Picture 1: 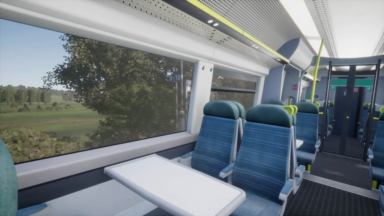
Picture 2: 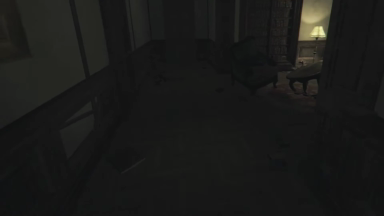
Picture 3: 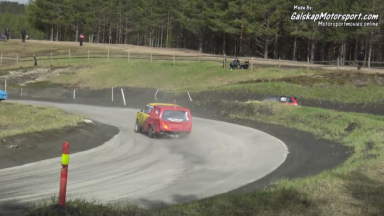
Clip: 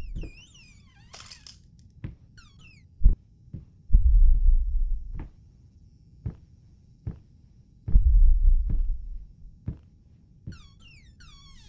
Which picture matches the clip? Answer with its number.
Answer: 2